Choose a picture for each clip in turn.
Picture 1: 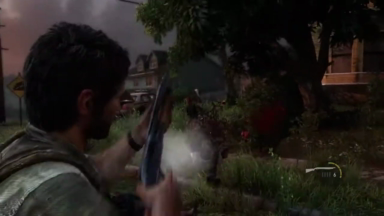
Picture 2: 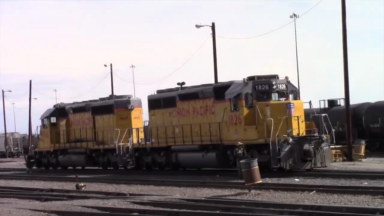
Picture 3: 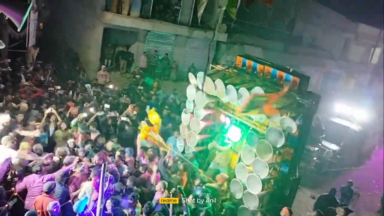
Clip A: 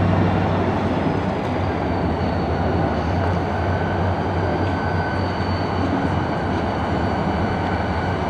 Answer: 2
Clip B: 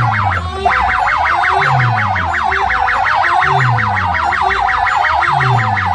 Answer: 3